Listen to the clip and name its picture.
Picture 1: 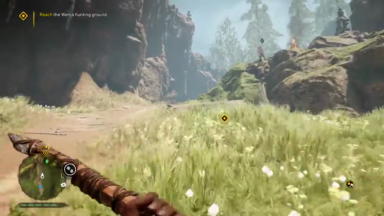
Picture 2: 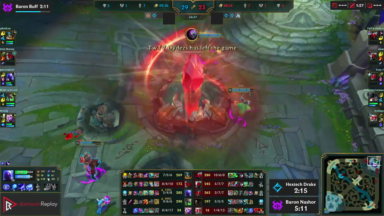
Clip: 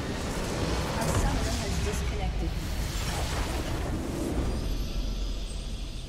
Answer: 2